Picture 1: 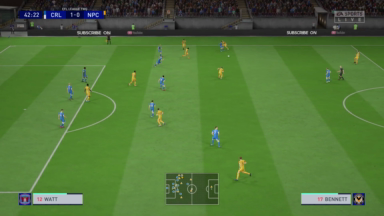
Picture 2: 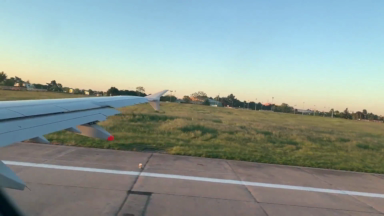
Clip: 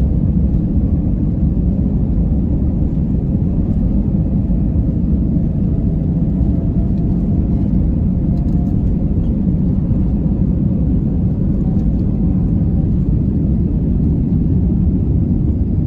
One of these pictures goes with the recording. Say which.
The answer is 2